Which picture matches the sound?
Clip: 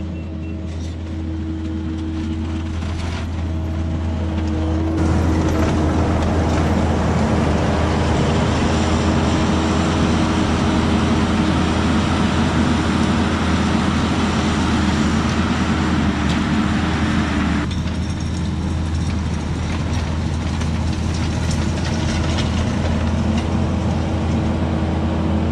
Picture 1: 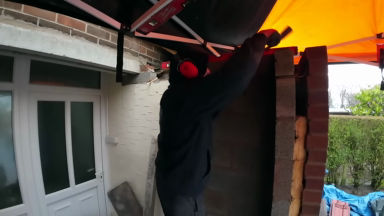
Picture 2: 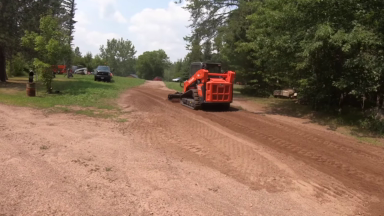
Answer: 2